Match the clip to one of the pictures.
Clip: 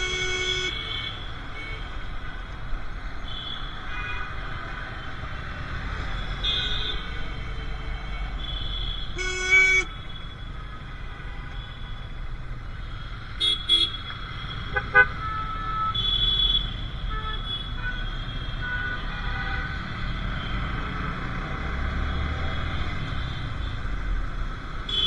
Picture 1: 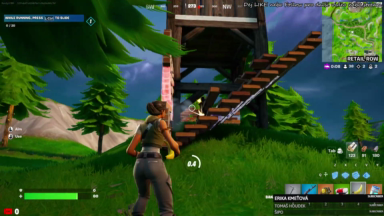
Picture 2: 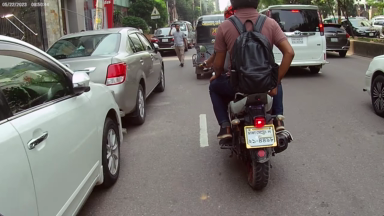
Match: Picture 2